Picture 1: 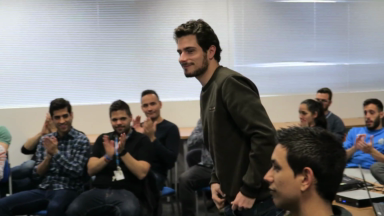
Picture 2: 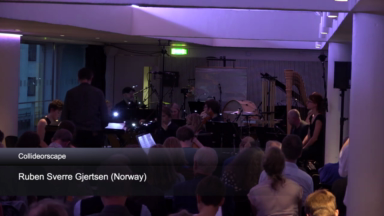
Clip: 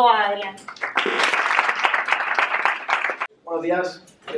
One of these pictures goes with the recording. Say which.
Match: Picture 1